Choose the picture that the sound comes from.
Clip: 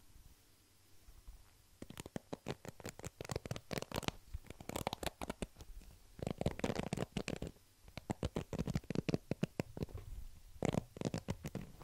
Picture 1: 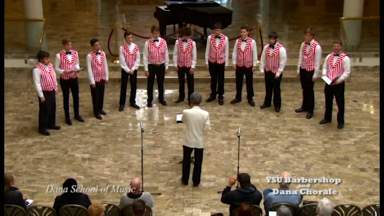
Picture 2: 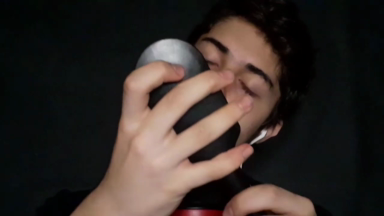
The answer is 2